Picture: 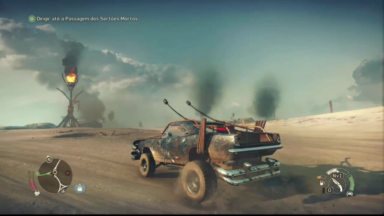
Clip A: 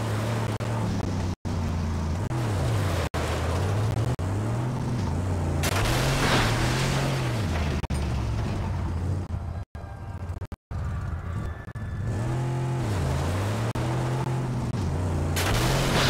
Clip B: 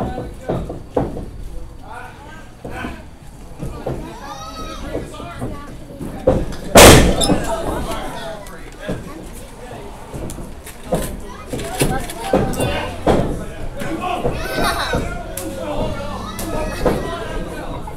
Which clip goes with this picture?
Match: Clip A